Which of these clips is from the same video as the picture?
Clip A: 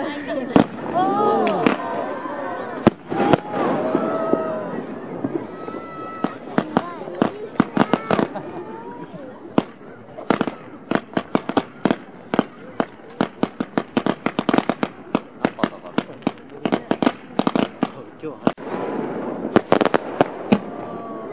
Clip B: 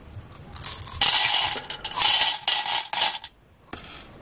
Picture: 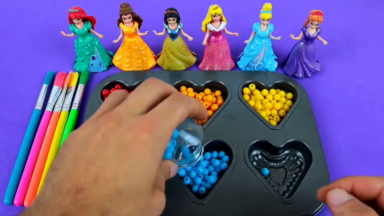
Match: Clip B